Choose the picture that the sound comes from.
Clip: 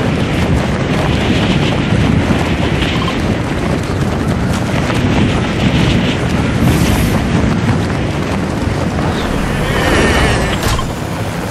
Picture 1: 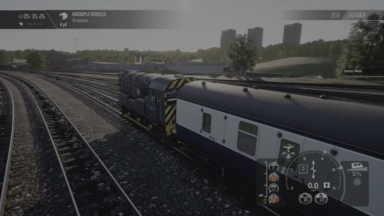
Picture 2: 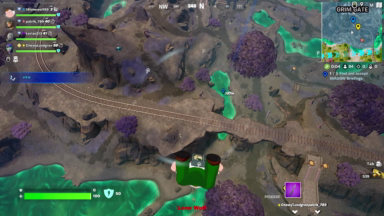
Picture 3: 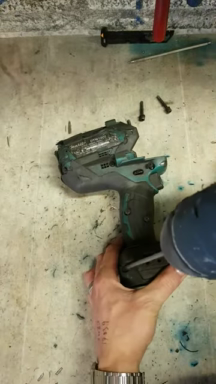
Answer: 2